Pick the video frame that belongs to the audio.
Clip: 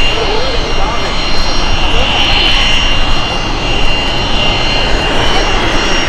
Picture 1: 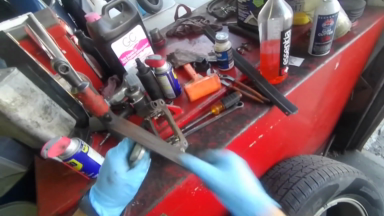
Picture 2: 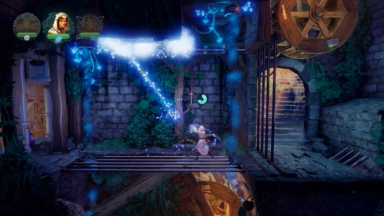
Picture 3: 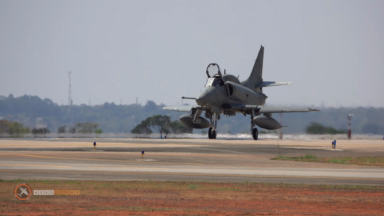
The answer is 3